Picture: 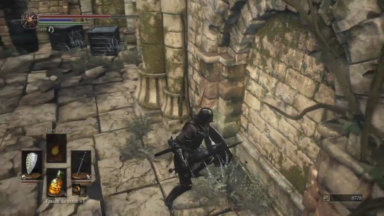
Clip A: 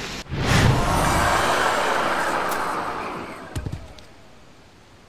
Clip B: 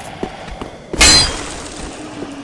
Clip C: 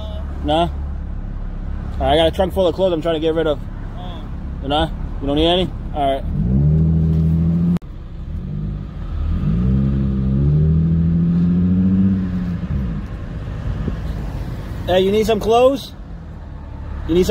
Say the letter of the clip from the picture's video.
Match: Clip B